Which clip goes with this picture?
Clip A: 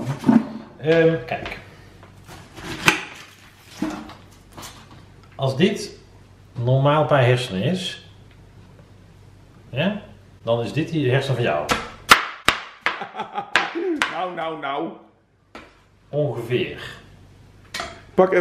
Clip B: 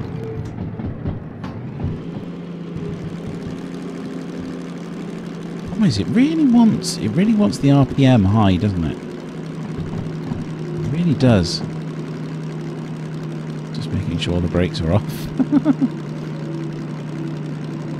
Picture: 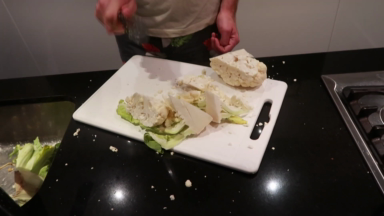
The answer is A